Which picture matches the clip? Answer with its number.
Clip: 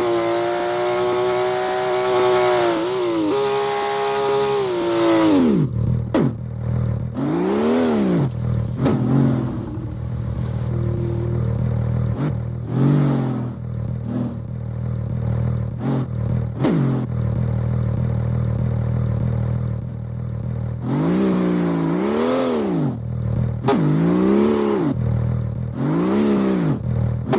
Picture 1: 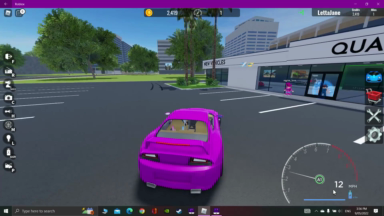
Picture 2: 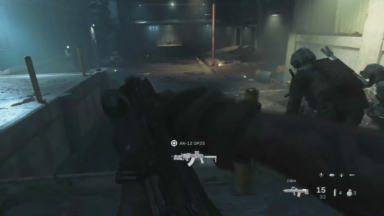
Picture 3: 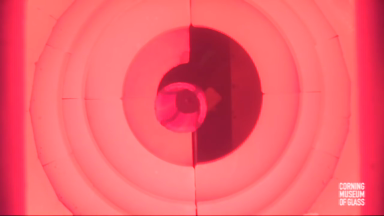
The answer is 1